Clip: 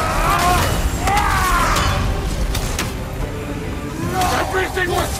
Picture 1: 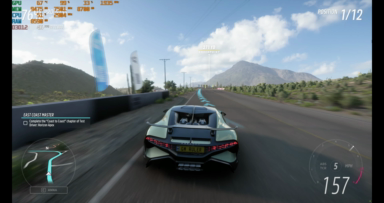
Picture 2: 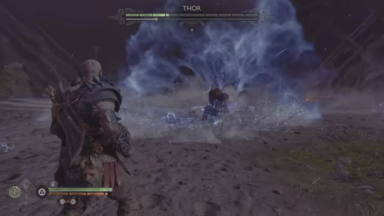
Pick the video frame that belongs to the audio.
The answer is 2